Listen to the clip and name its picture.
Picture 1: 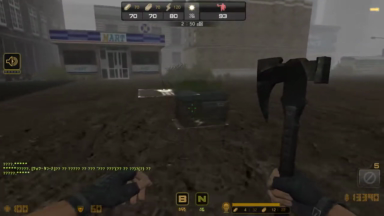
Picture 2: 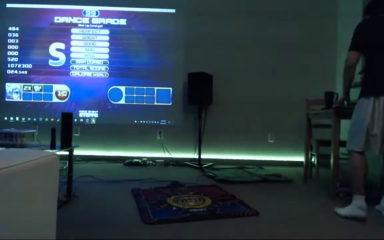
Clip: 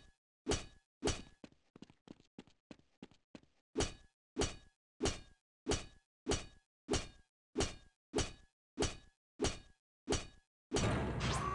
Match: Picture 1